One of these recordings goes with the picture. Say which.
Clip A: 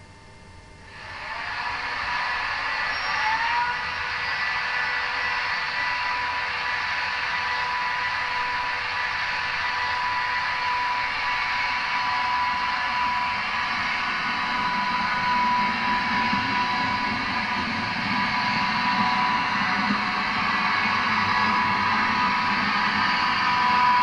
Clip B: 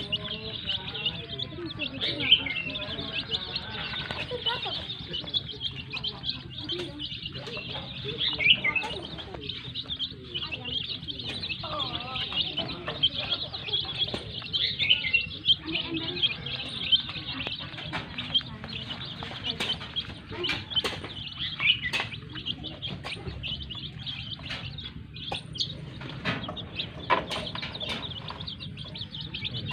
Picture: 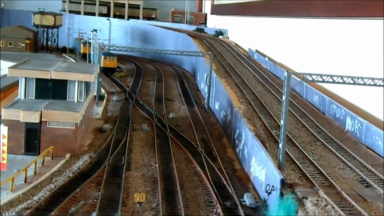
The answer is A